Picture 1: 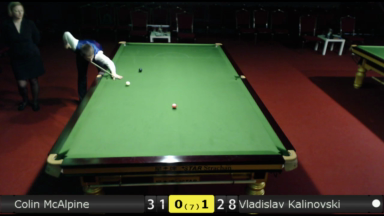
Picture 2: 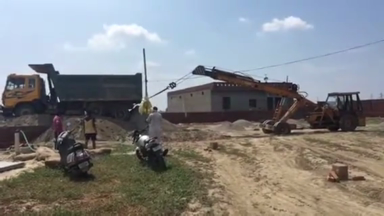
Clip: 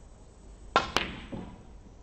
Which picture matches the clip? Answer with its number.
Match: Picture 1